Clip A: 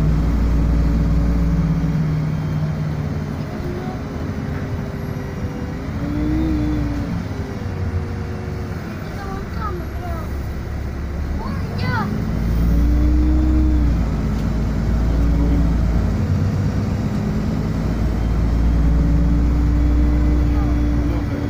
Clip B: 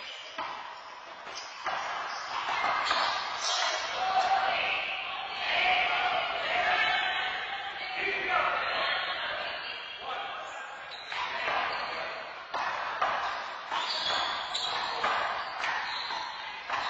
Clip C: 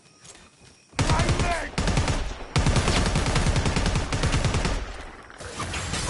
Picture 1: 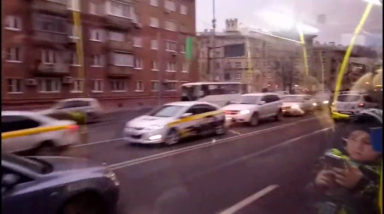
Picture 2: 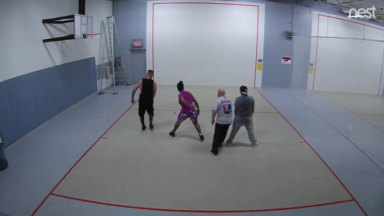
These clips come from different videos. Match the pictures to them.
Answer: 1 A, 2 B